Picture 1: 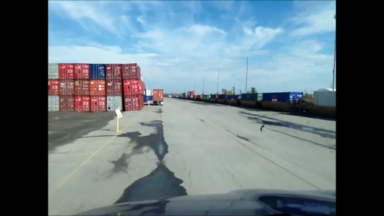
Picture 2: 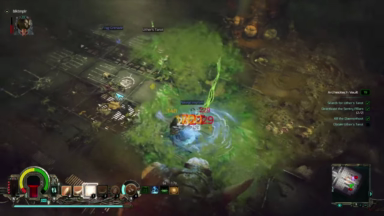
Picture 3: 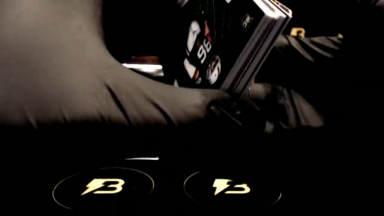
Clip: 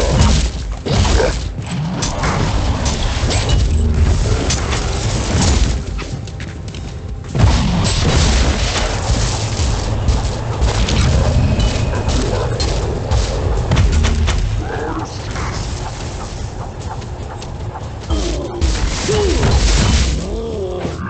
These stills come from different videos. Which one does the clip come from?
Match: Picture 2